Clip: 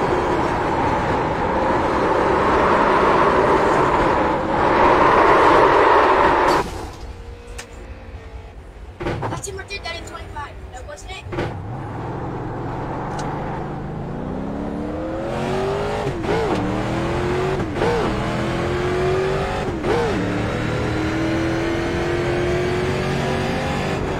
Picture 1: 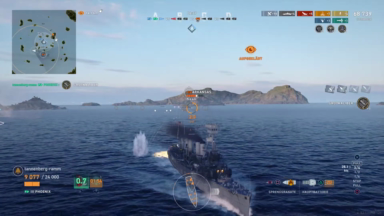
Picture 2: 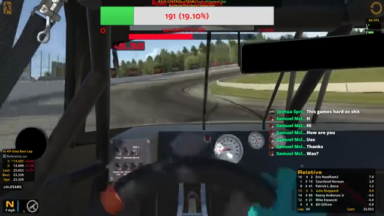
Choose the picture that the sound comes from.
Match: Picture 2